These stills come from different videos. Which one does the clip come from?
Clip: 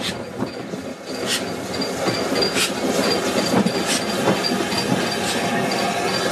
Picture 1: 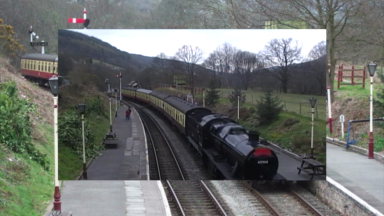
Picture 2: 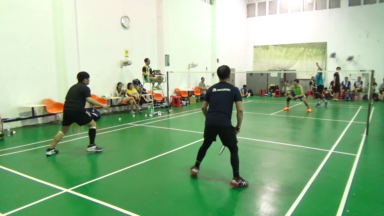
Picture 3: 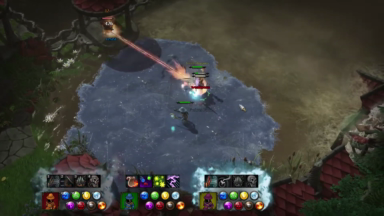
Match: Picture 1